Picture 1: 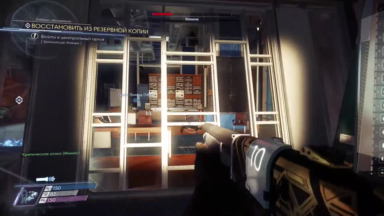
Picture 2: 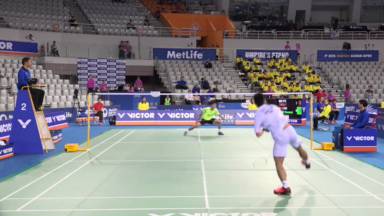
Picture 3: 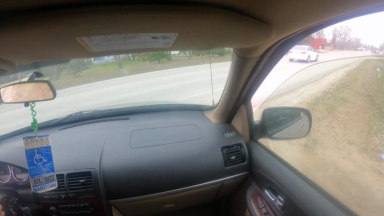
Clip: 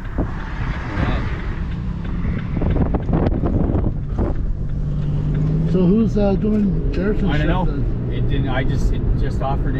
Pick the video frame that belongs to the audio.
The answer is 3